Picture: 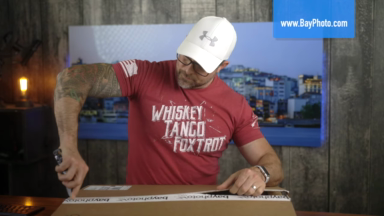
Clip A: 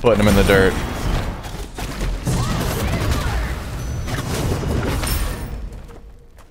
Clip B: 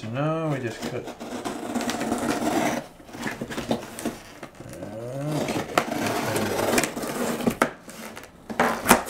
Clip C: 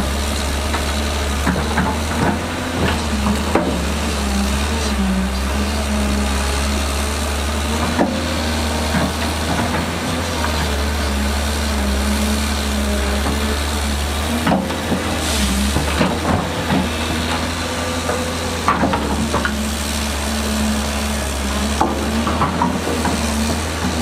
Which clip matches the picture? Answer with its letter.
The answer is B